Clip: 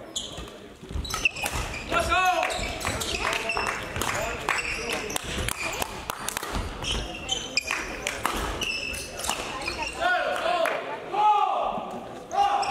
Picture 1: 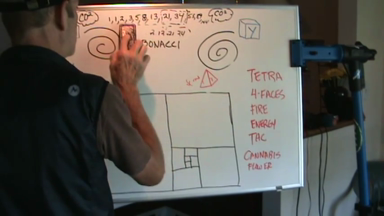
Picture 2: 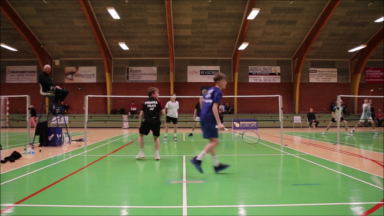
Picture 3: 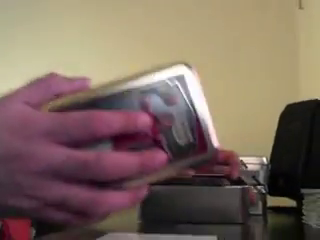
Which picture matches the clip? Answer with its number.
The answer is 2